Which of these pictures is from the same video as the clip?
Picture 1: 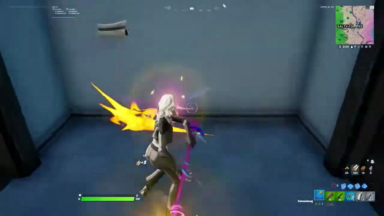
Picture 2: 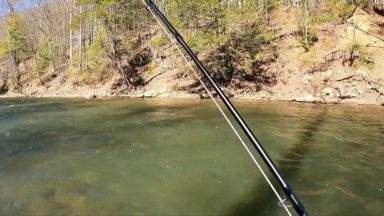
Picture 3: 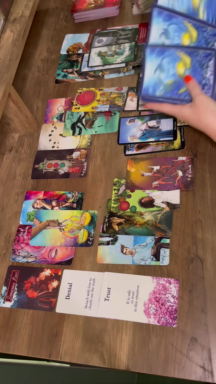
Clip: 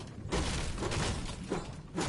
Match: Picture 1